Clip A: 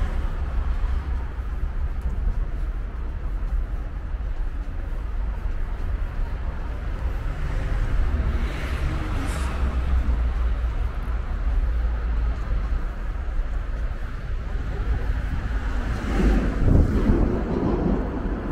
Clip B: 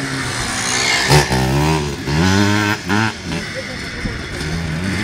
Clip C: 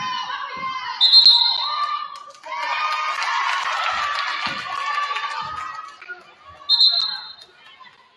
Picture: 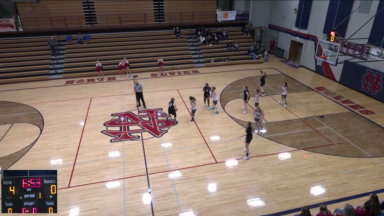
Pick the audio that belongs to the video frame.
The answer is C